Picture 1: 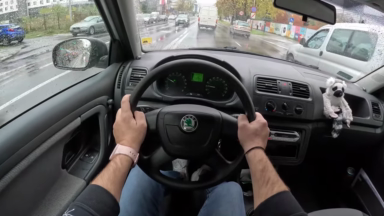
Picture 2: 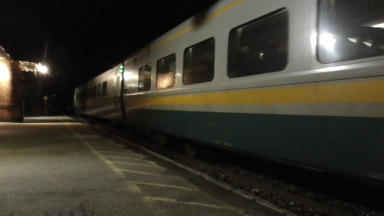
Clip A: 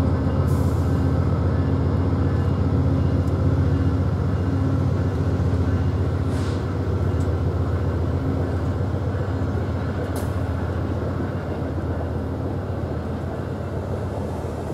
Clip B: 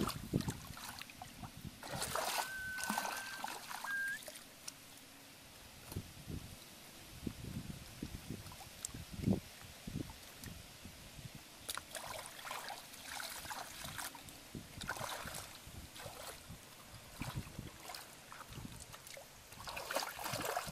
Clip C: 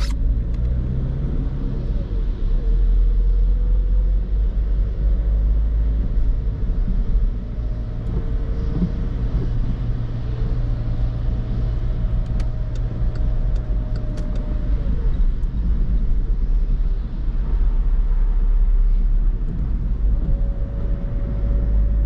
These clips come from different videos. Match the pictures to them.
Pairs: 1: C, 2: A